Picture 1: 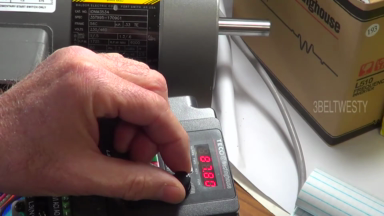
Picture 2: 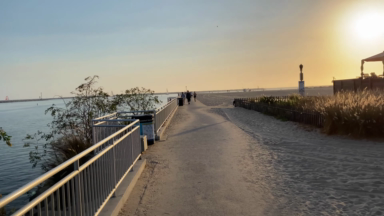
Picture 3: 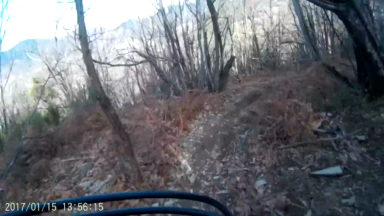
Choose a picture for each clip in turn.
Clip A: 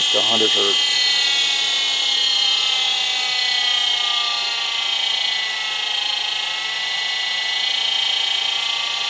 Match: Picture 1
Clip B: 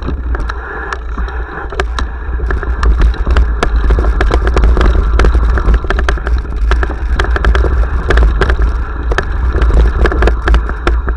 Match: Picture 3